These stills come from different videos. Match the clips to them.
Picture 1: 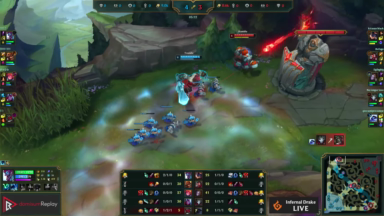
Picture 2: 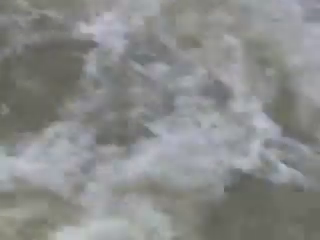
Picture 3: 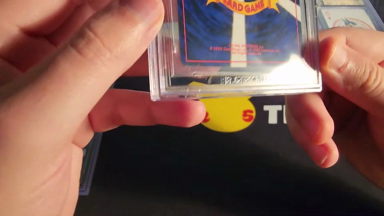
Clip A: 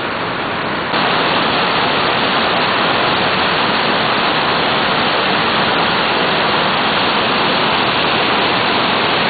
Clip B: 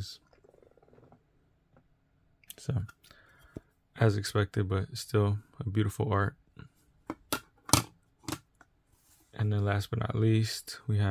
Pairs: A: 2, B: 3